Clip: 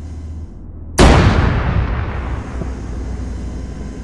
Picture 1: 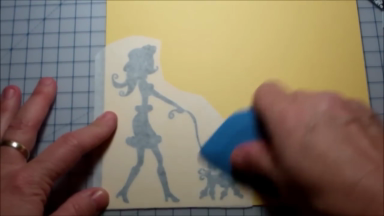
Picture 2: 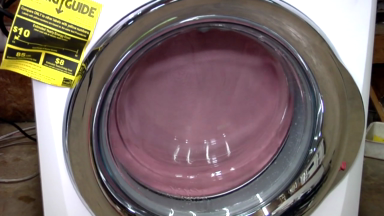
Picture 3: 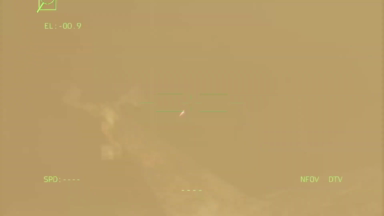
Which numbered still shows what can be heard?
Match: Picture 3